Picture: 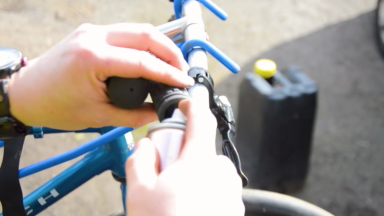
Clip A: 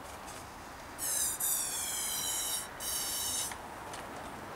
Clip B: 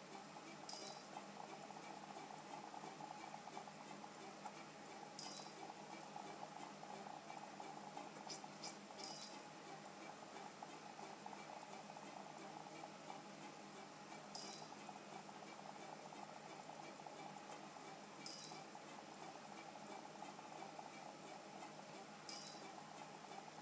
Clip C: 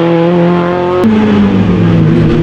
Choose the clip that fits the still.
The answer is A